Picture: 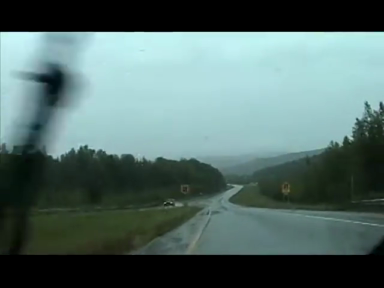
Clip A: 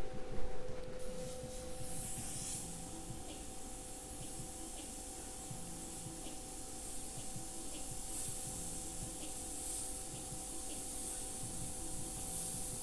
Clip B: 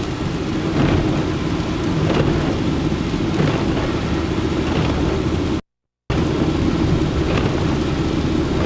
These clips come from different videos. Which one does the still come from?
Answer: B